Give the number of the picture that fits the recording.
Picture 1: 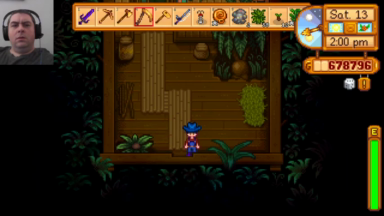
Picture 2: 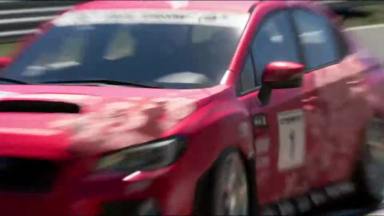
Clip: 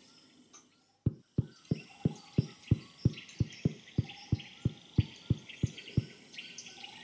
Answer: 1